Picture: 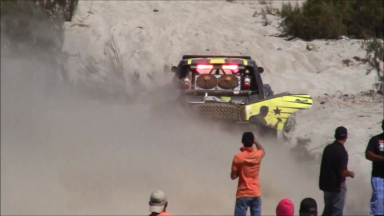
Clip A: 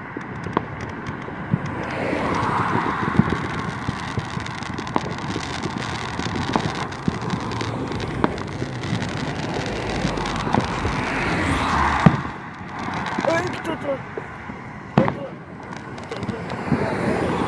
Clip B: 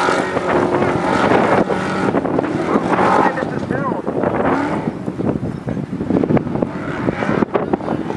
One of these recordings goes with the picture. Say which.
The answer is B